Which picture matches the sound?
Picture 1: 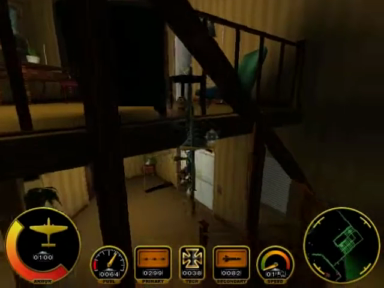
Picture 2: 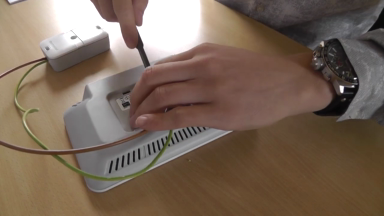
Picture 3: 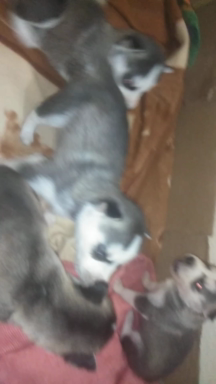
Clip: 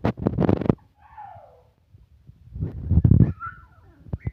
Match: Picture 3